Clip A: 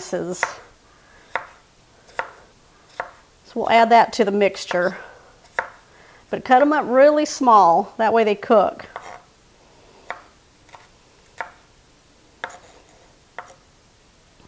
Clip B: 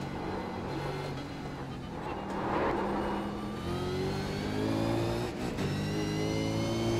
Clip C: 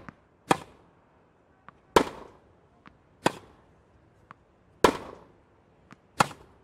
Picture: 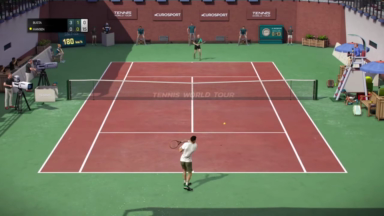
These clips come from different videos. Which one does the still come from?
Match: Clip C